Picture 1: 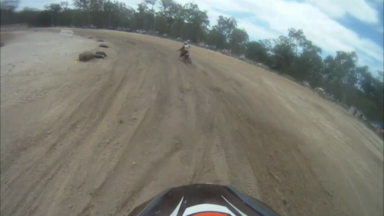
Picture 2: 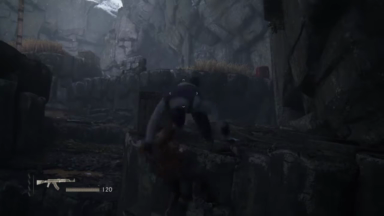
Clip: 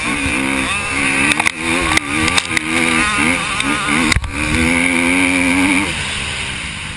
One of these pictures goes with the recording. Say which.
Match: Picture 1